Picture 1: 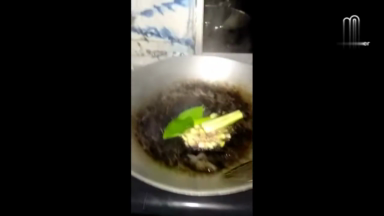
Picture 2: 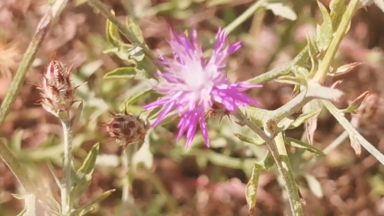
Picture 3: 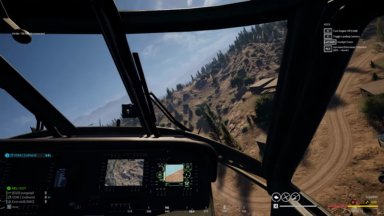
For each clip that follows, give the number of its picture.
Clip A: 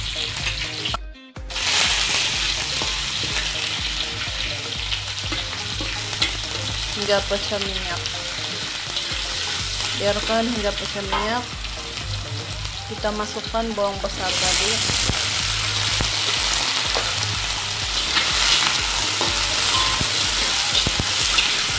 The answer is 1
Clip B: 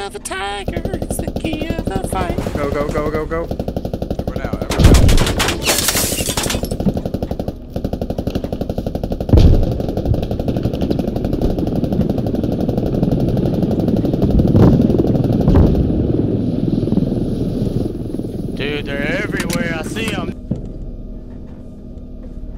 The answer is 3